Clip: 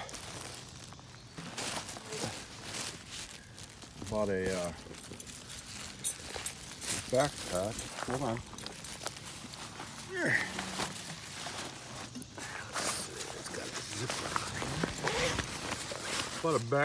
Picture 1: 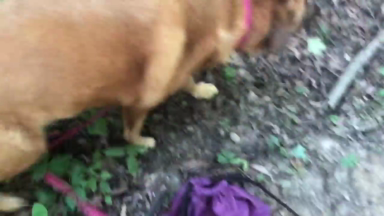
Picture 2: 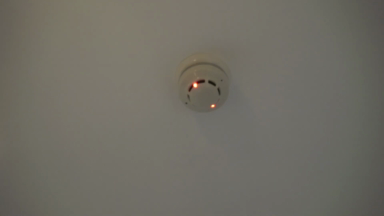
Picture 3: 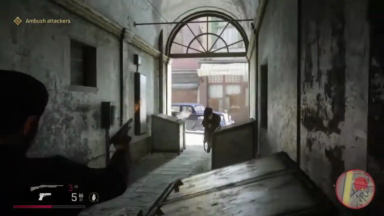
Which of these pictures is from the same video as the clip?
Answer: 1